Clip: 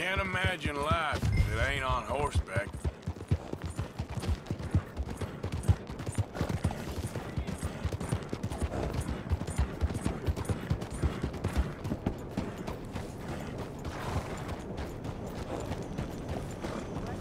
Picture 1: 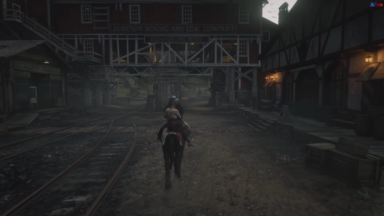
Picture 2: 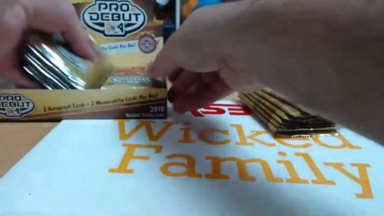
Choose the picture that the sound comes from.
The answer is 1